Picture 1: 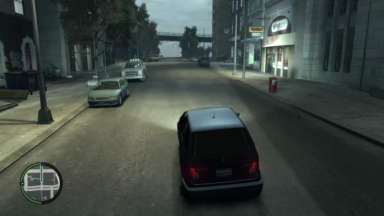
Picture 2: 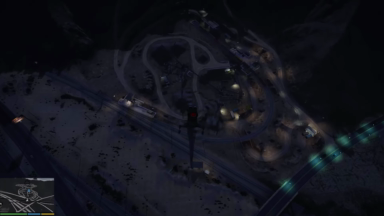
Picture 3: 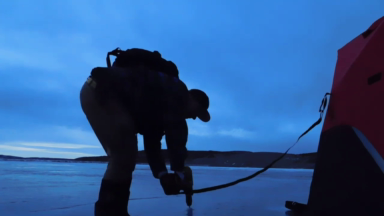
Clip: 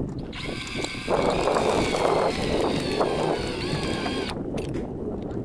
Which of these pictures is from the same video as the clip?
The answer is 3